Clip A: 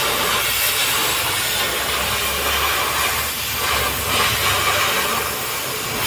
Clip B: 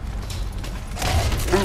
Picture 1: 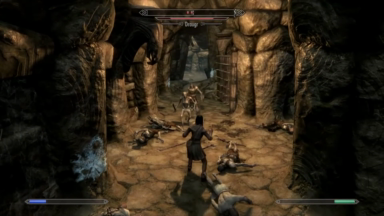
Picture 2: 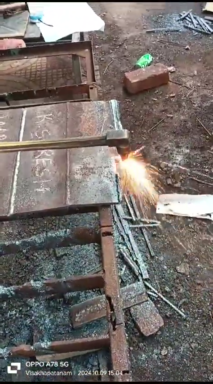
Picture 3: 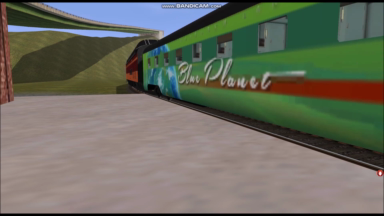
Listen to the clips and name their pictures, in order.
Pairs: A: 2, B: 1